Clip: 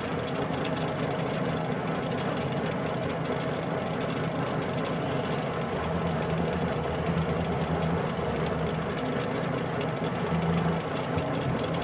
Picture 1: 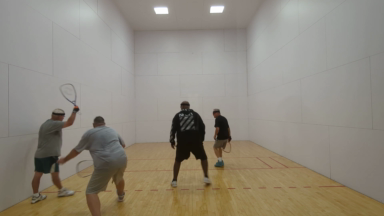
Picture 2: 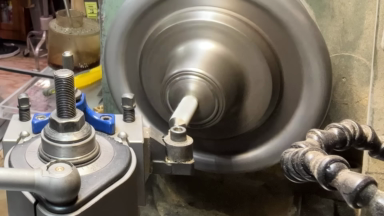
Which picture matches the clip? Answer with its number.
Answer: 2